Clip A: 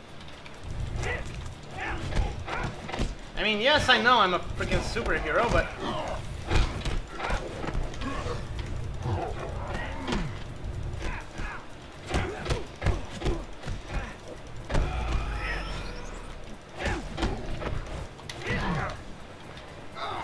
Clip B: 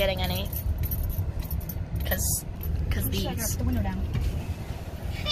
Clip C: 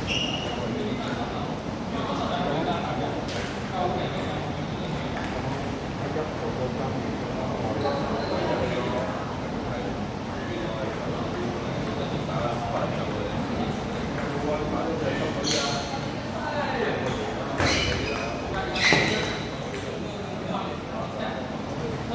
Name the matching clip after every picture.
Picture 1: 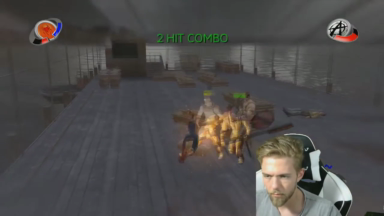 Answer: A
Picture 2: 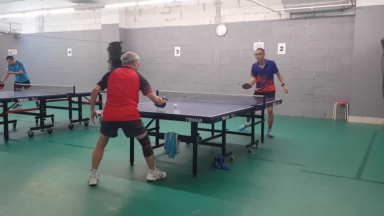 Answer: C